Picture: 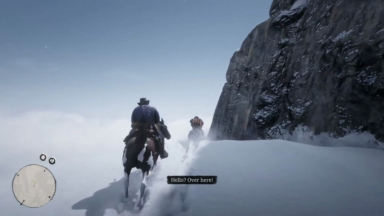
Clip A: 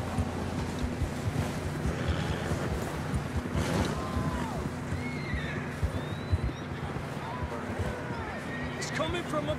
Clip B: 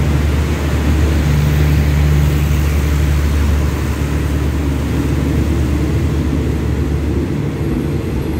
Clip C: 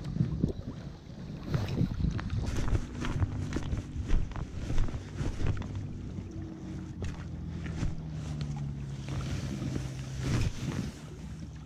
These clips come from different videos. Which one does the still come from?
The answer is A